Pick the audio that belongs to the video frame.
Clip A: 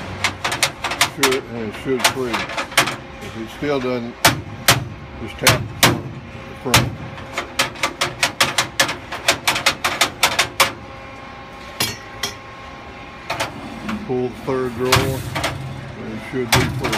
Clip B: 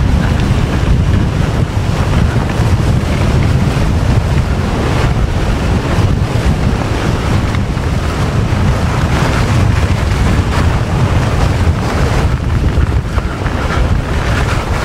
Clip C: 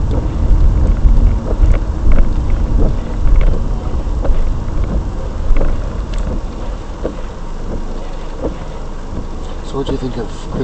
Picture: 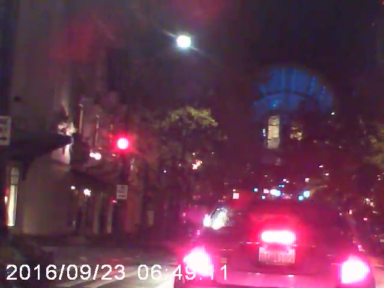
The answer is C